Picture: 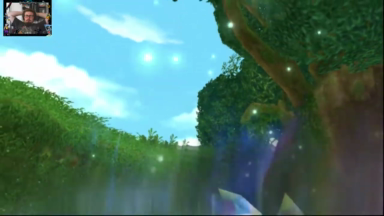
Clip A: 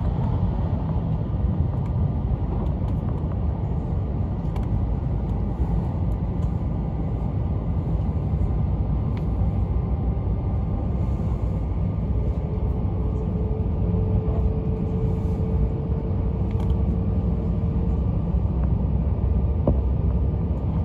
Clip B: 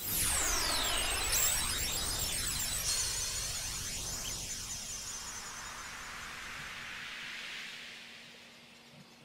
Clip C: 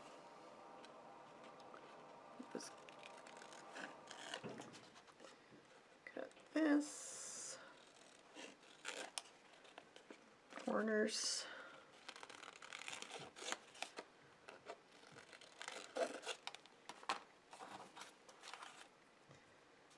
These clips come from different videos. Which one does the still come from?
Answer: B